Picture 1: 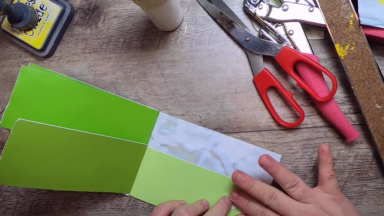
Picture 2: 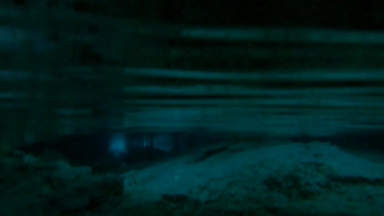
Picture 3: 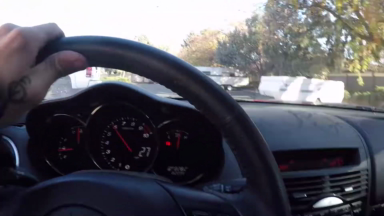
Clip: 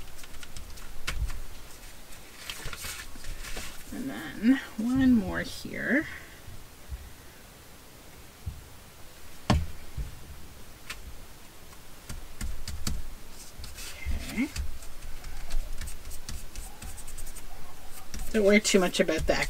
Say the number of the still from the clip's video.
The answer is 1